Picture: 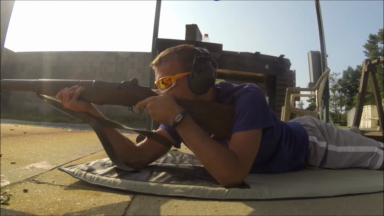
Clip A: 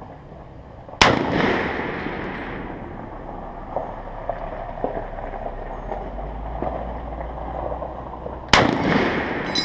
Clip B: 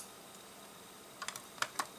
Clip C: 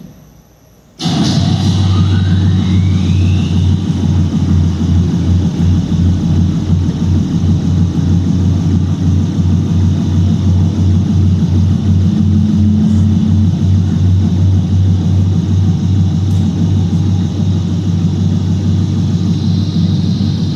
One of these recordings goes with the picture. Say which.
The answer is A